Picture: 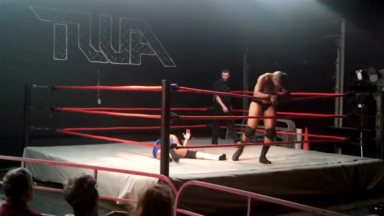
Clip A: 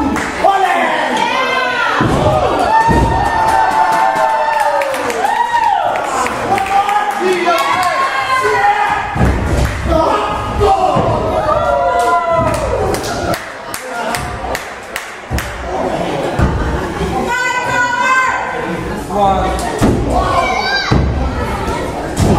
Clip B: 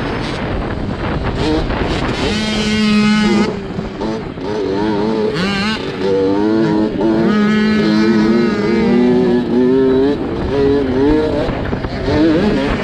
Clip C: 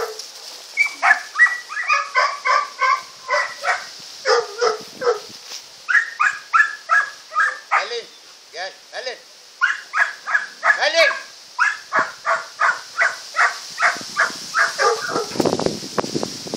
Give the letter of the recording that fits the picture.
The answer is A